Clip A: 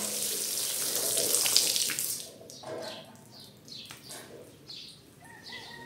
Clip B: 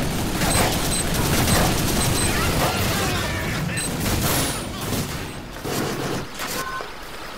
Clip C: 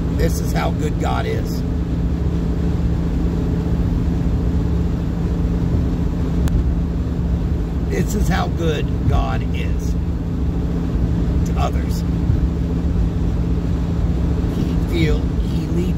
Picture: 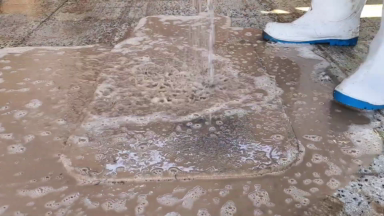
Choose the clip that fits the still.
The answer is A